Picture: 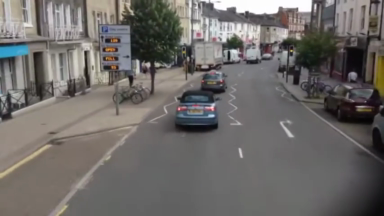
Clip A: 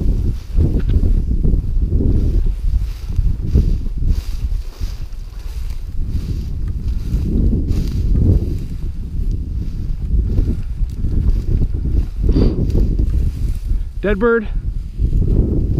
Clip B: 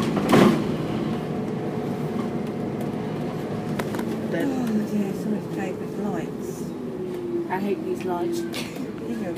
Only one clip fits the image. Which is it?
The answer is B